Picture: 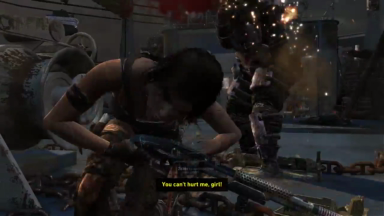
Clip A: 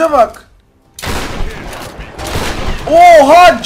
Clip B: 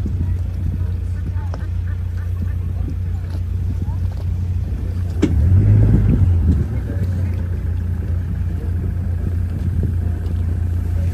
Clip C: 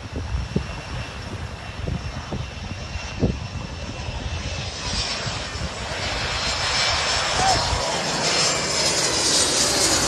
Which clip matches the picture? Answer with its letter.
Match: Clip A